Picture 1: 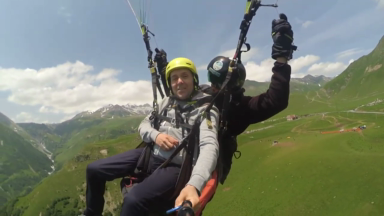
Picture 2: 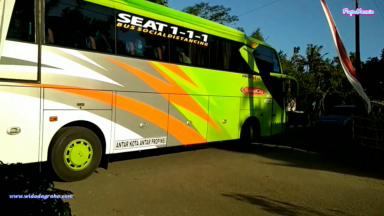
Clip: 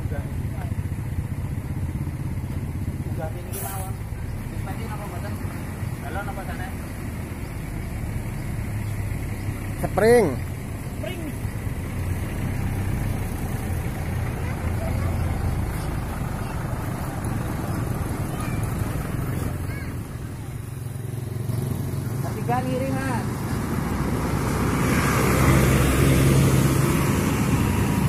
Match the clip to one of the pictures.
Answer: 2